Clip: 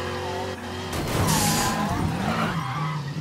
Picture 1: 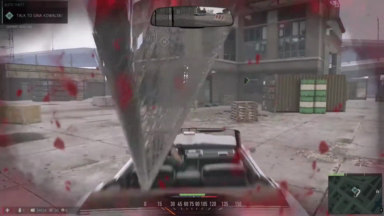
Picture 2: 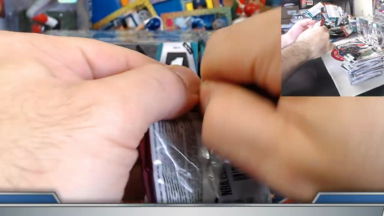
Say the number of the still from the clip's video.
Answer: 1